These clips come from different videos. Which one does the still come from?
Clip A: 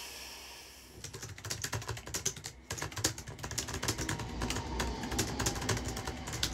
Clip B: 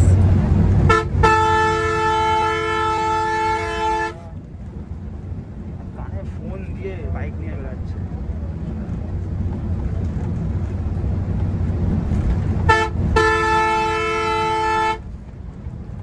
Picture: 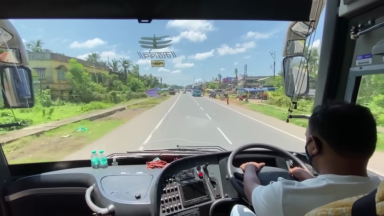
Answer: B